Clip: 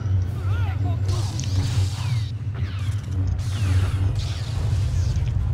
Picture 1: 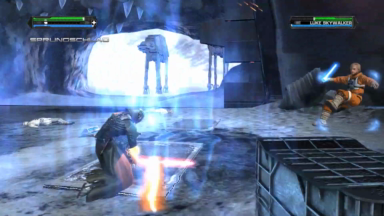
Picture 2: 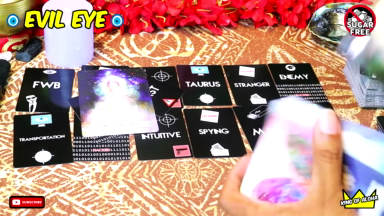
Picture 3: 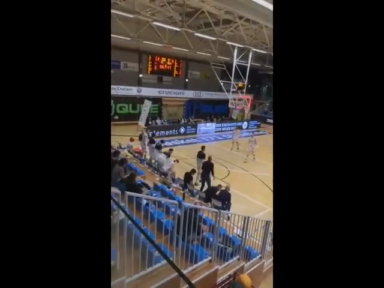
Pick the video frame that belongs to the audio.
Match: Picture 1